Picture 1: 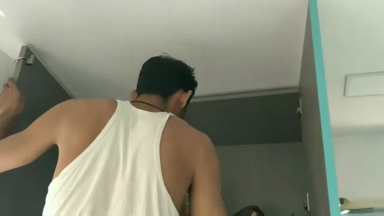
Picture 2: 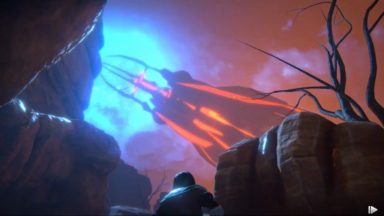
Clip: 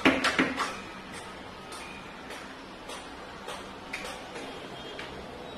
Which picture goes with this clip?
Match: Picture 1